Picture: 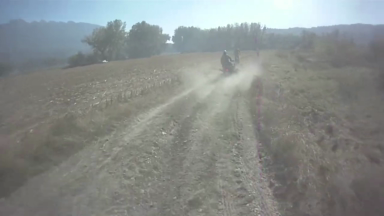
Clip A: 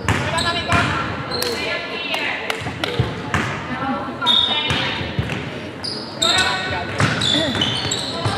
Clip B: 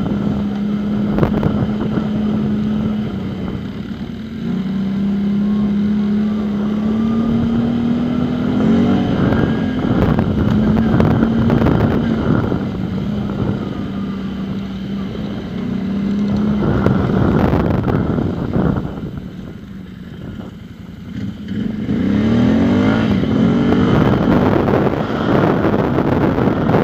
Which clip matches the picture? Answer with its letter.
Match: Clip B